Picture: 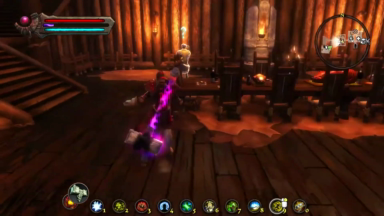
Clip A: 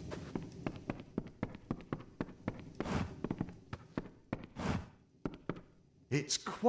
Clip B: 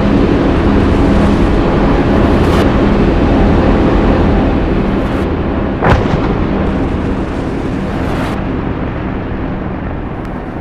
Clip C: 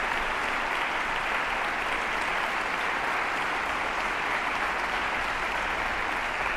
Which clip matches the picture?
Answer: A